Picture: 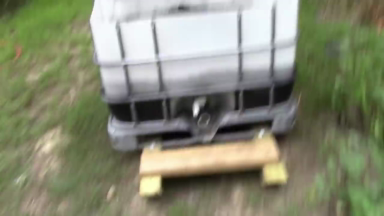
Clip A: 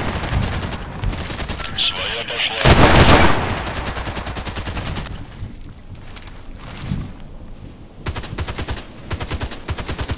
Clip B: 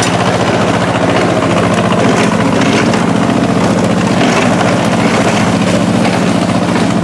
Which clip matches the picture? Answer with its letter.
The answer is B